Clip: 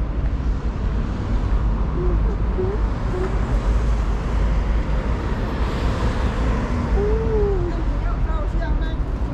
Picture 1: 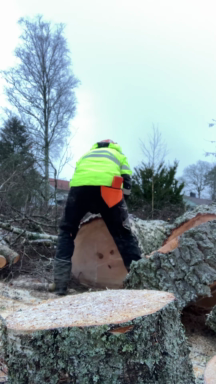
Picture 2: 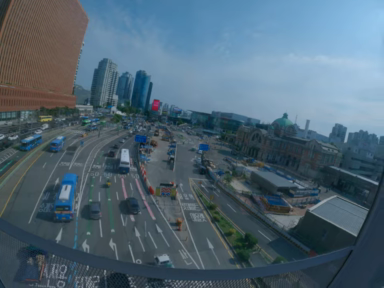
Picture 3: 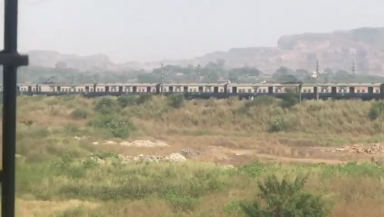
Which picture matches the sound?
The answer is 2